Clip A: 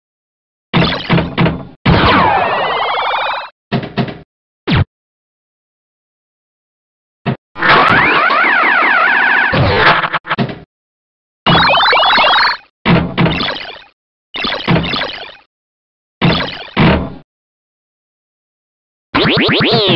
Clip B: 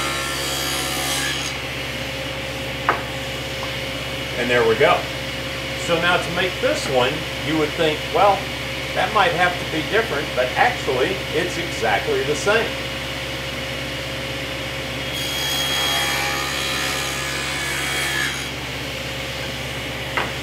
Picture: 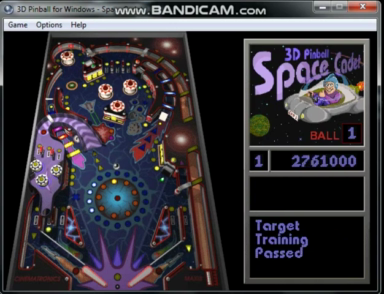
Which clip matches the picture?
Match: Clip A